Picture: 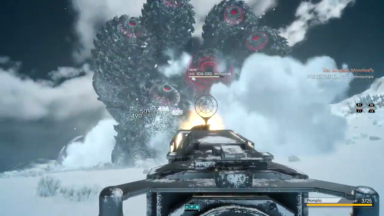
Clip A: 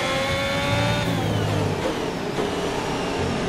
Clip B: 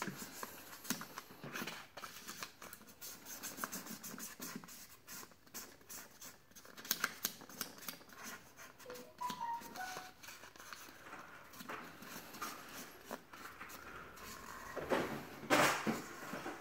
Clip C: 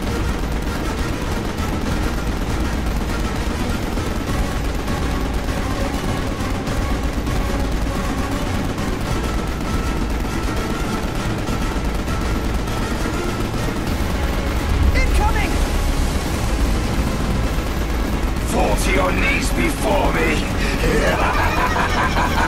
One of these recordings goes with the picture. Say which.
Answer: C